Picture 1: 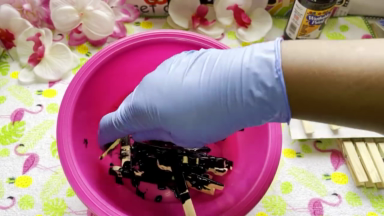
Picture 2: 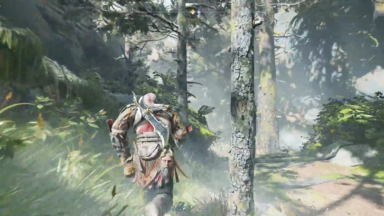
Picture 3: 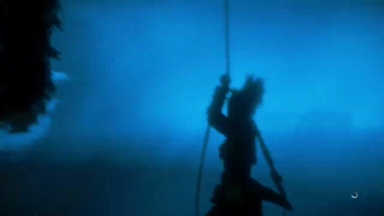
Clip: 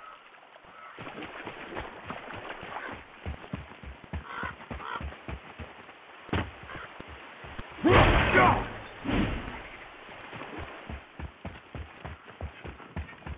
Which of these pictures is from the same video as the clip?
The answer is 2